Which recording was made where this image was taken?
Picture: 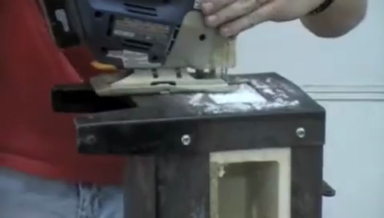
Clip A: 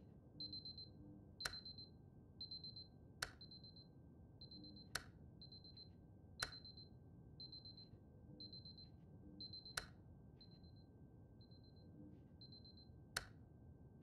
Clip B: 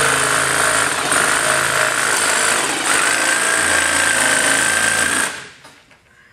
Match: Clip B